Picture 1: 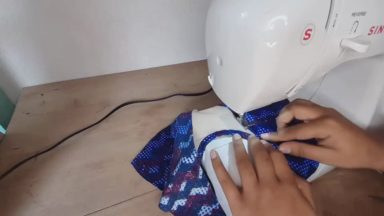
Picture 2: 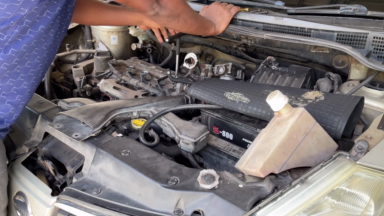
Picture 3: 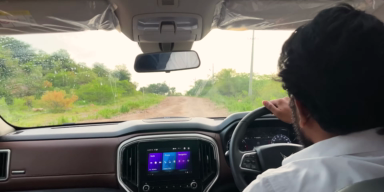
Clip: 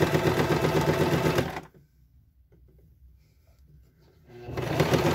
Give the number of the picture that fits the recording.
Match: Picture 1